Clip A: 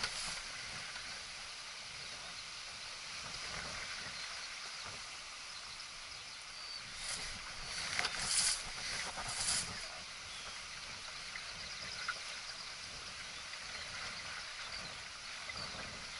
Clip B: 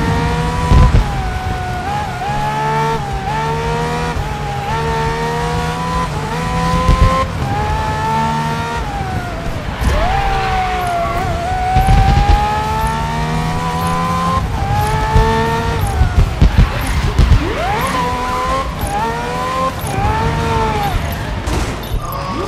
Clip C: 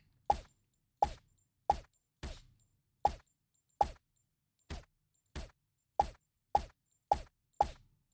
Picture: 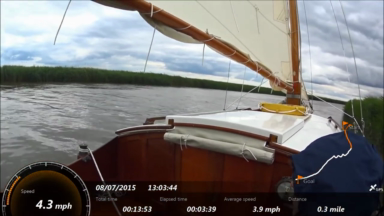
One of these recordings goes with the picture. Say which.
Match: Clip A